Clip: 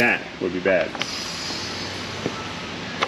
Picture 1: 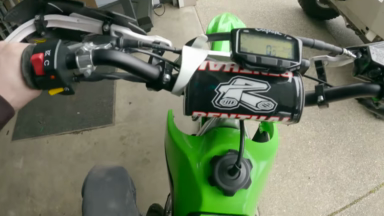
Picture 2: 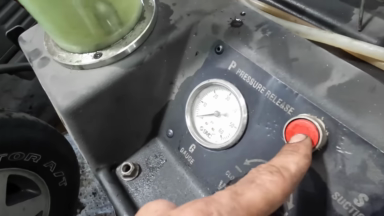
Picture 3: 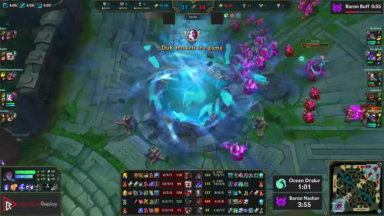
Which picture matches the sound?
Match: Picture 2